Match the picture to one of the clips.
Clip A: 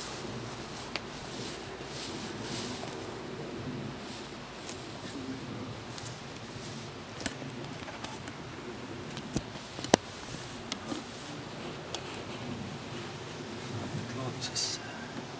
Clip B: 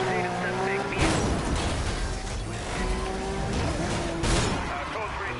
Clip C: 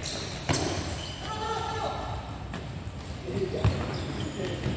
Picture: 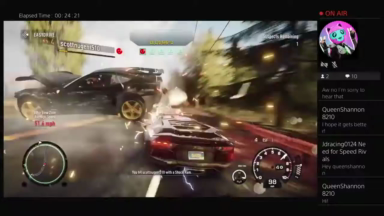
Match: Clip B